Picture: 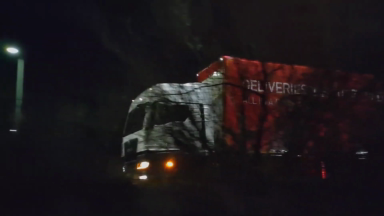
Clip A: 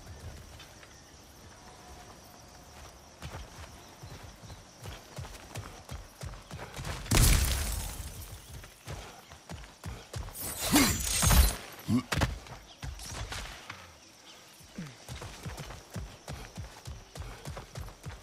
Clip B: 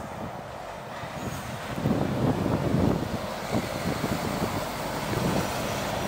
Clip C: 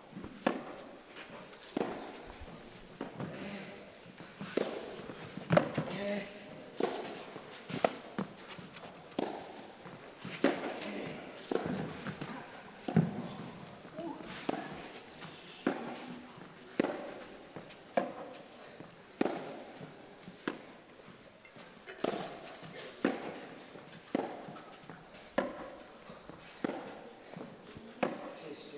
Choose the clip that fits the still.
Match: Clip B